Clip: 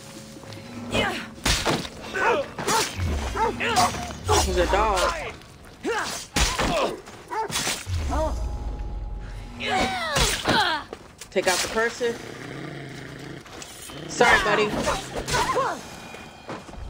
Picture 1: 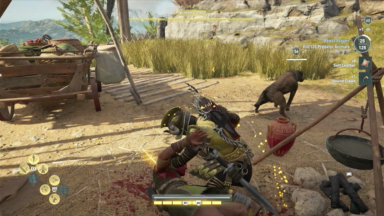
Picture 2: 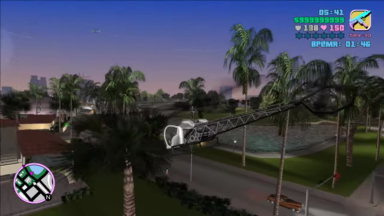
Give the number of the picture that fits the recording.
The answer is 1